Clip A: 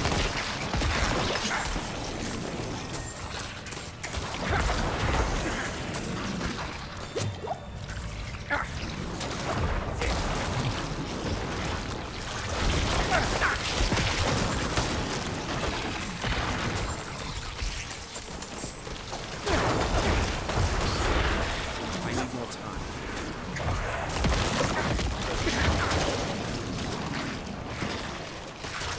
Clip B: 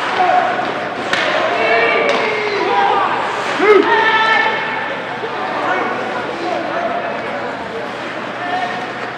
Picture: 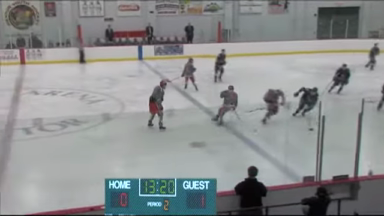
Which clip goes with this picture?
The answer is B